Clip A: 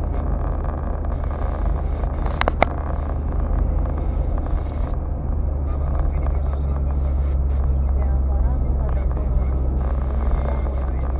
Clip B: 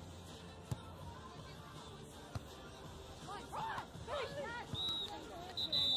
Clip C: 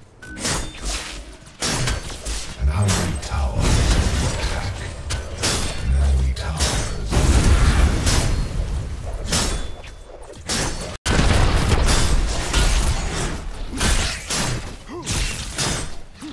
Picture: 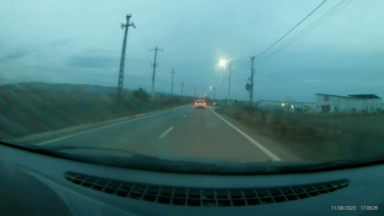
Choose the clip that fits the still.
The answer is A